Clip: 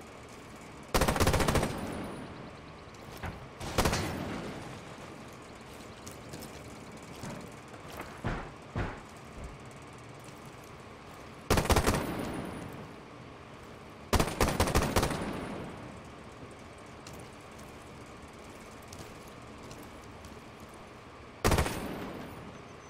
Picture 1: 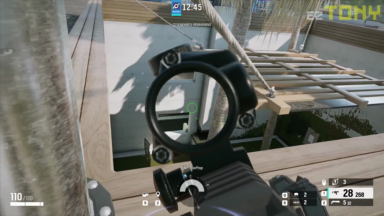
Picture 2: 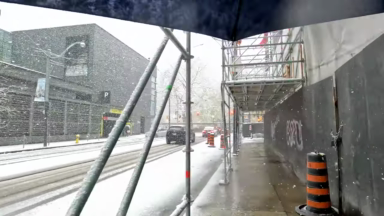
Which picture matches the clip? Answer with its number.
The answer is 1